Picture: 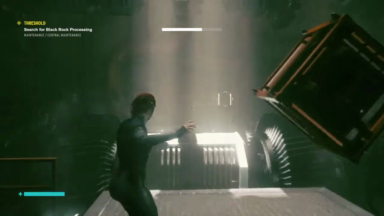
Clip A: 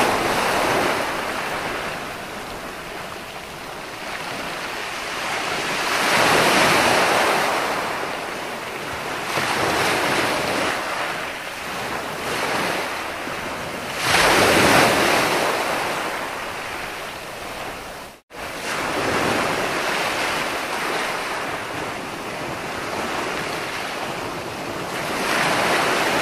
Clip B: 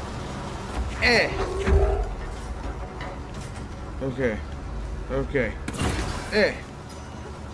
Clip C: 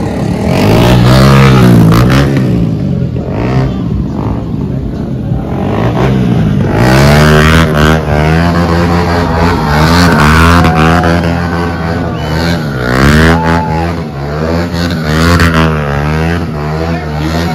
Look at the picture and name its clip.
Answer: B